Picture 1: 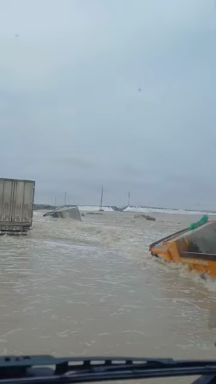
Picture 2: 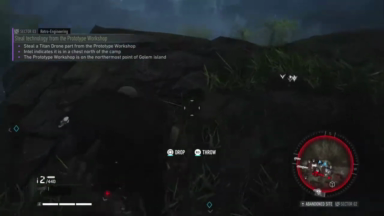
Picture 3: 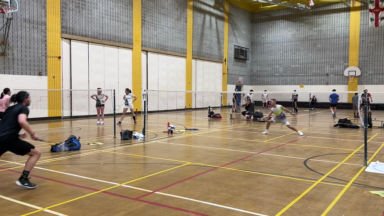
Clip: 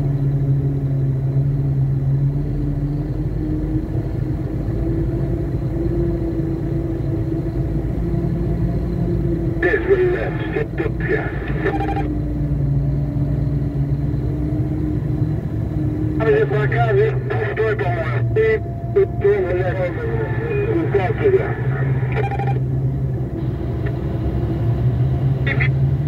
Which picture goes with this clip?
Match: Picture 1